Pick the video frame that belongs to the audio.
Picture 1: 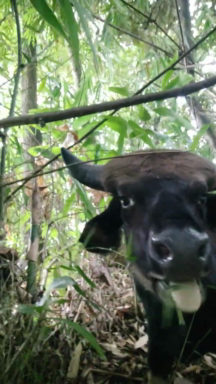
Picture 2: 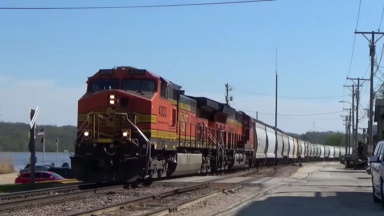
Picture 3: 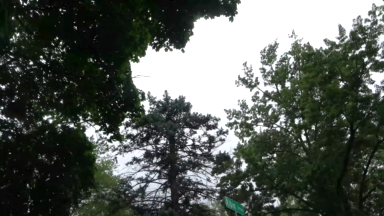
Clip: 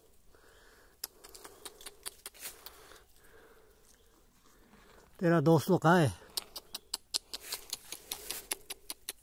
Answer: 1